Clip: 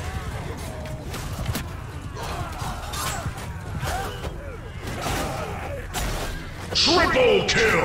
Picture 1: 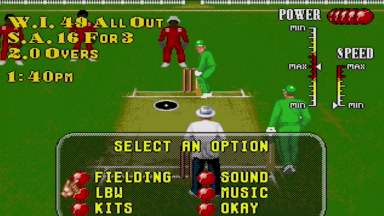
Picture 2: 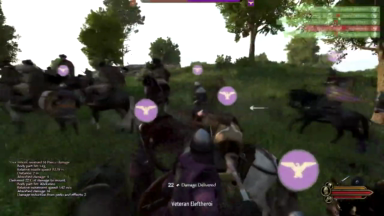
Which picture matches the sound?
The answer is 2